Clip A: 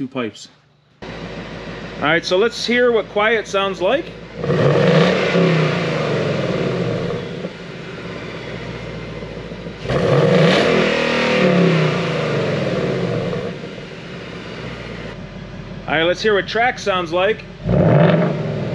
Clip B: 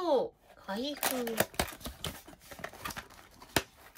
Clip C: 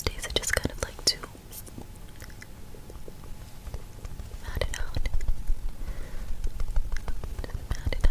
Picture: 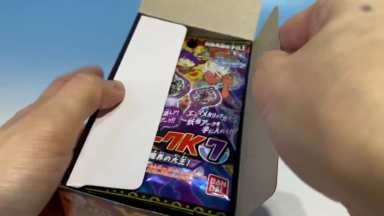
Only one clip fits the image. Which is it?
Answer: B